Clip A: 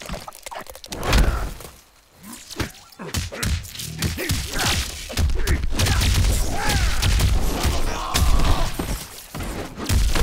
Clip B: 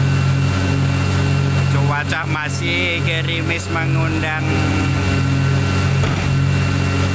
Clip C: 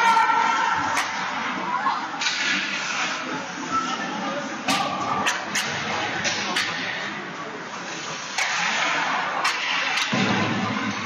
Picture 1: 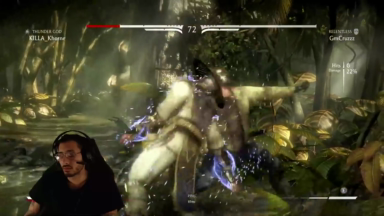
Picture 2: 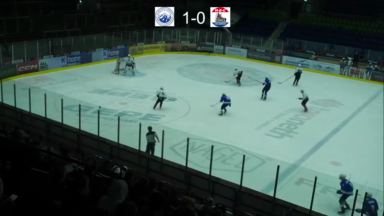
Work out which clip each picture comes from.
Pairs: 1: A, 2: C